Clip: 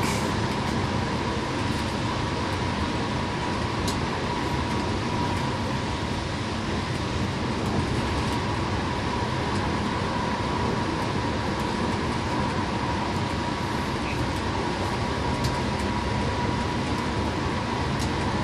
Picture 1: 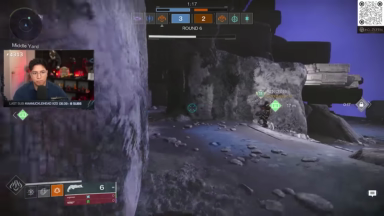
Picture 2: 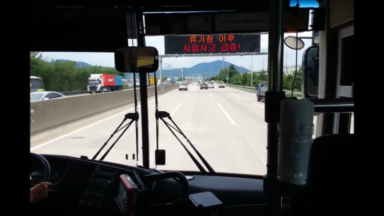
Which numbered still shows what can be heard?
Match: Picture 2